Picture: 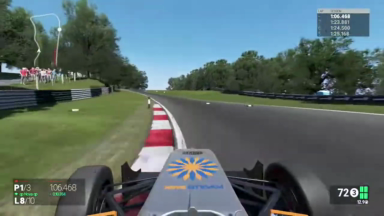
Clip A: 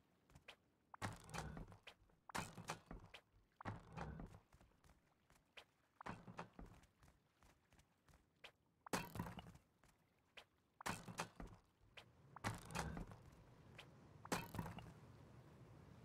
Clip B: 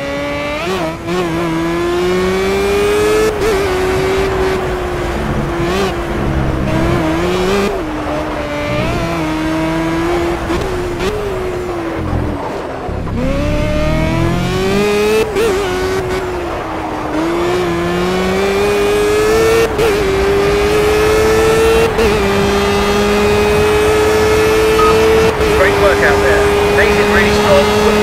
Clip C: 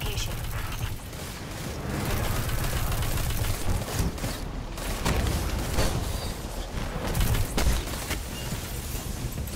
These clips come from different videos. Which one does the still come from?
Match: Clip B